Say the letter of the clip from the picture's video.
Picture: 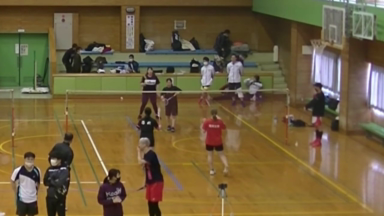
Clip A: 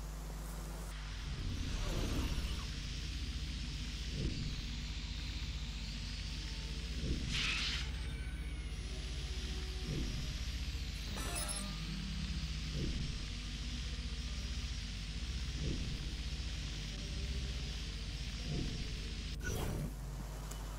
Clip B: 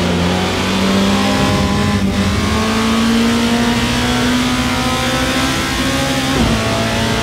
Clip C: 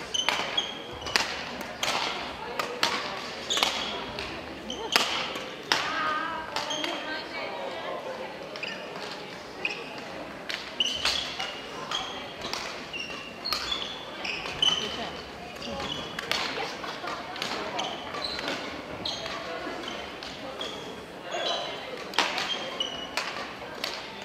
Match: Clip C